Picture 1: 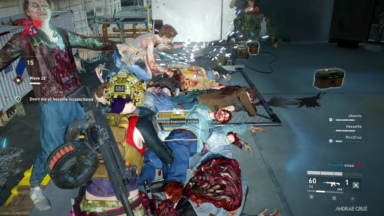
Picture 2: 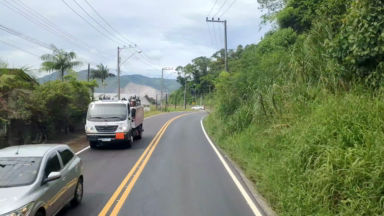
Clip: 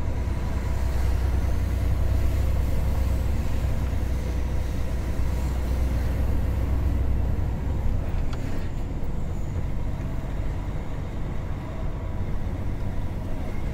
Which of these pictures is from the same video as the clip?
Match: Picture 2